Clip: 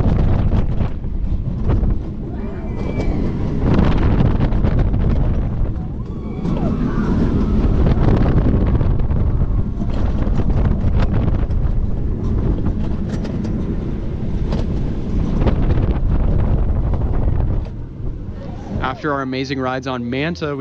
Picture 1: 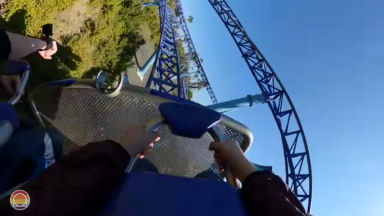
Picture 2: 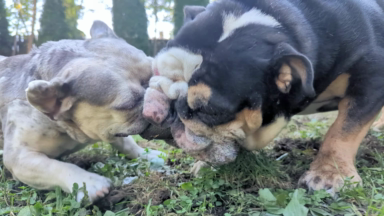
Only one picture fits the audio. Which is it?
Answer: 1